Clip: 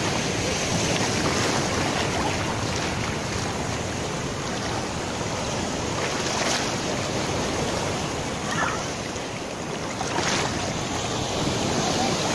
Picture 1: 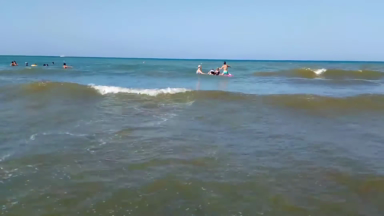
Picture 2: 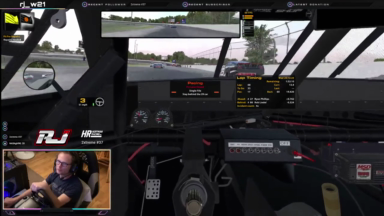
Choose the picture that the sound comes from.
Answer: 1